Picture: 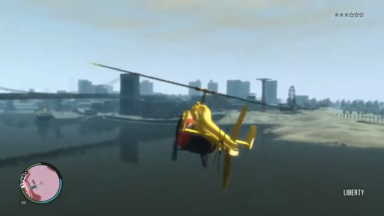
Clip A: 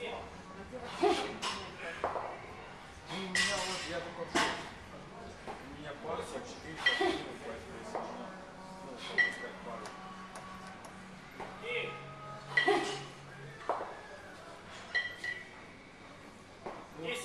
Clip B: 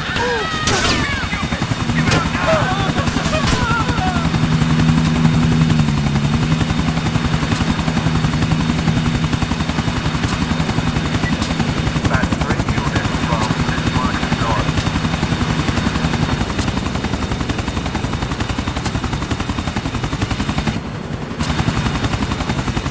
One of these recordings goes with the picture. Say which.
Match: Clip B